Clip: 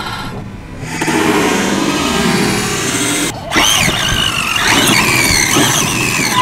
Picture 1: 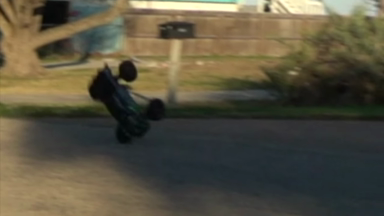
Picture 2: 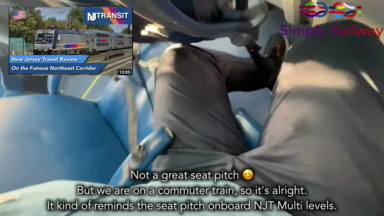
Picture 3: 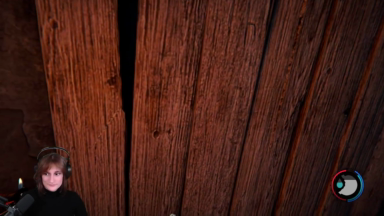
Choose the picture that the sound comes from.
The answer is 1